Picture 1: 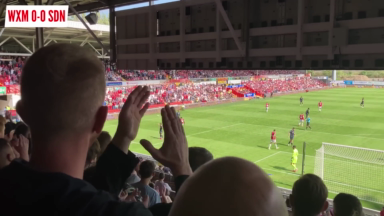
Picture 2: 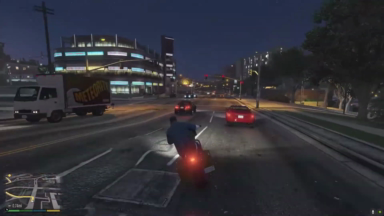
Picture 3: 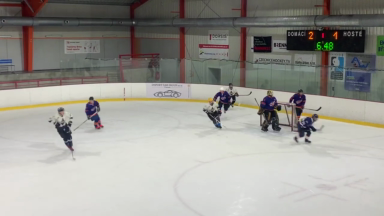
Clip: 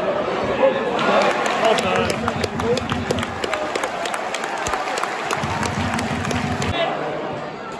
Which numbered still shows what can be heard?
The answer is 1